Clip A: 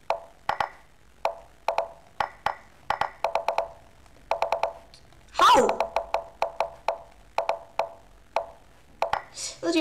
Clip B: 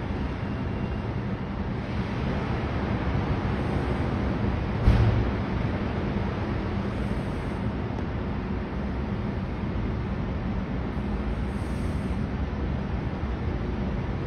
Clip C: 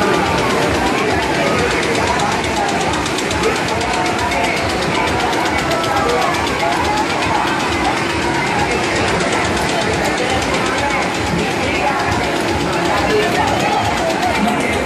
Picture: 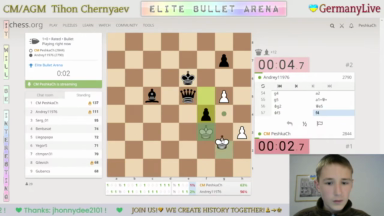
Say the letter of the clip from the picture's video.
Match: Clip A